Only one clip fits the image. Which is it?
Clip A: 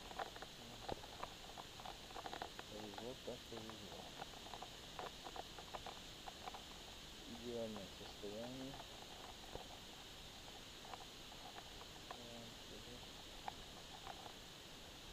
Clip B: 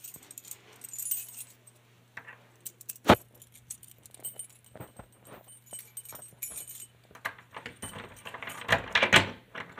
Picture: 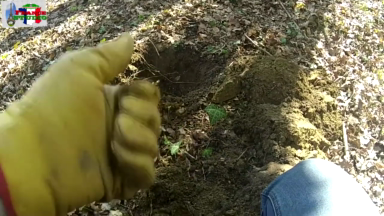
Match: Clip A